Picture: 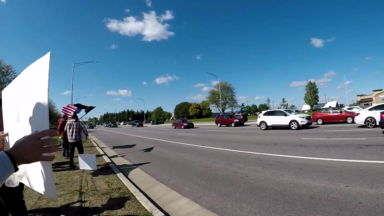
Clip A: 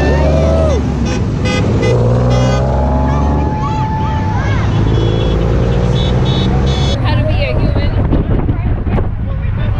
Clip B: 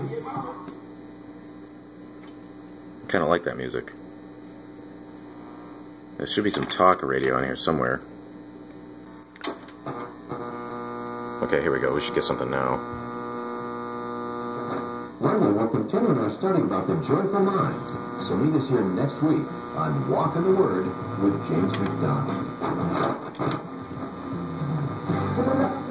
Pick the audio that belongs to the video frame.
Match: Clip A